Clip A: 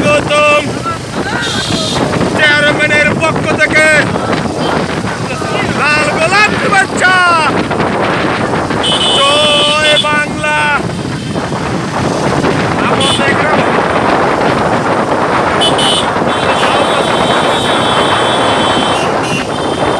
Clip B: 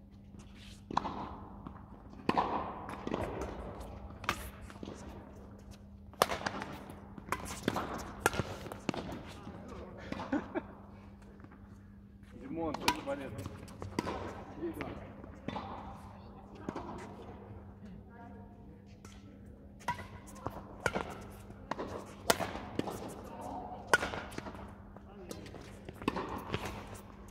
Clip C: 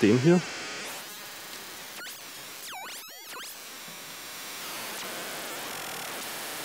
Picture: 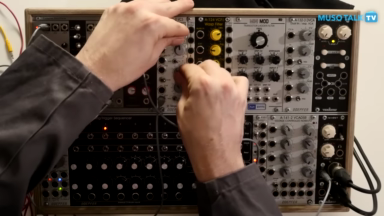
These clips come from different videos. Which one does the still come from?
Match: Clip C